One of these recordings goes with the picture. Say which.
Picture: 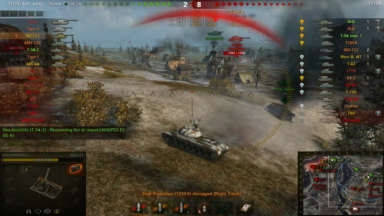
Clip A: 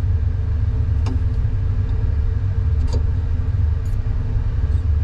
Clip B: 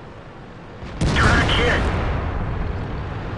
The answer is B